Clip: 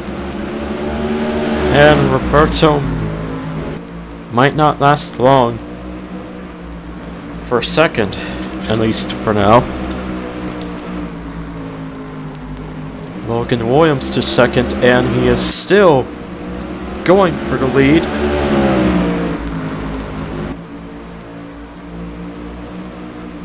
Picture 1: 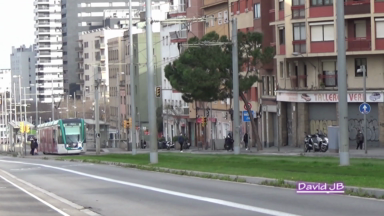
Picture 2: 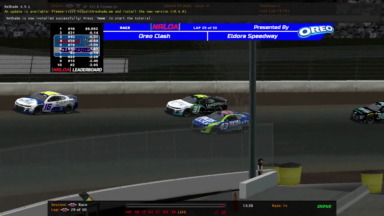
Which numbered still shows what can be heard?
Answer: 2